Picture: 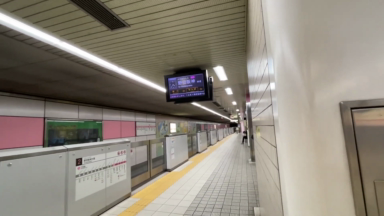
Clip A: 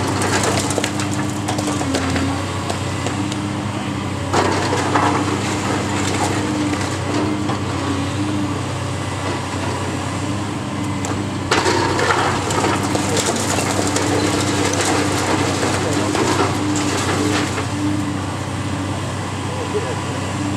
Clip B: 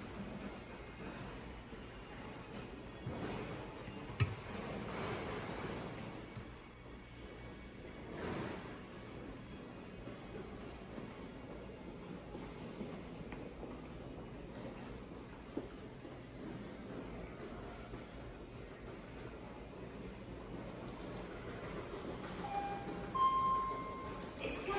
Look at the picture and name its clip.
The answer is B